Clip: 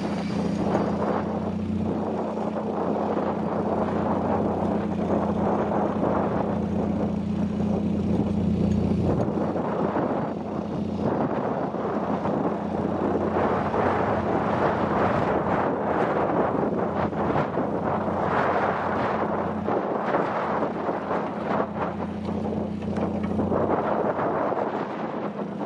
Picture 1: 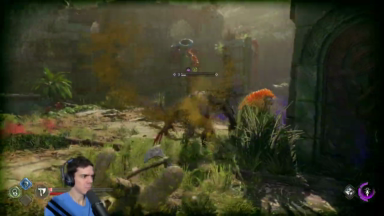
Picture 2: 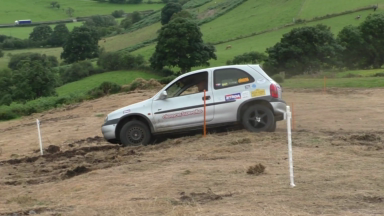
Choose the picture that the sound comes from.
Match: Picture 2